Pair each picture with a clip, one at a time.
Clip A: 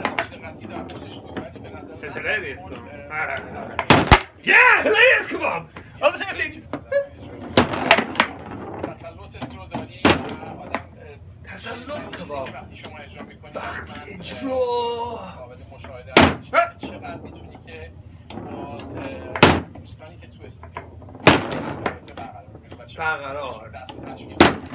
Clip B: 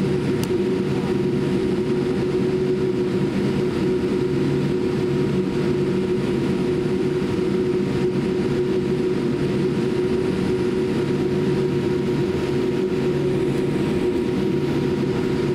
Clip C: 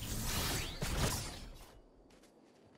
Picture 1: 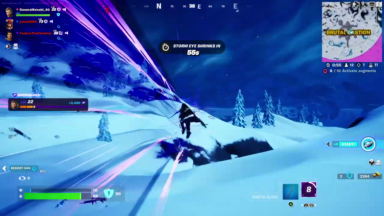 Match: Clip C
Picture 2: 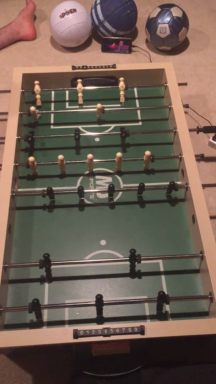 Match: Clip A